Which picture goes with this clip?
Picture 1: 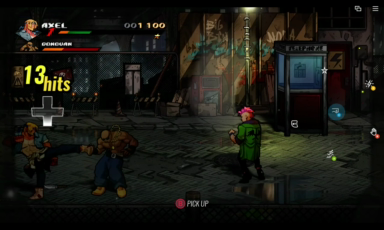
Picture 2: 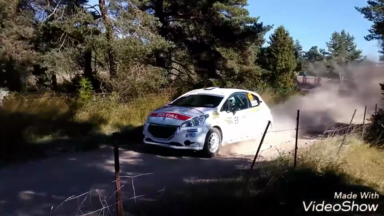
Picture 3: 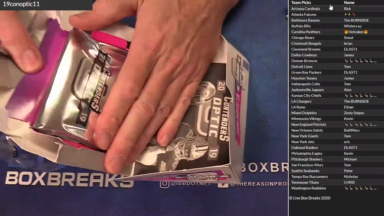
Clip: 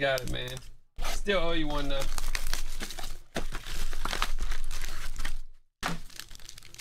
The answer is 3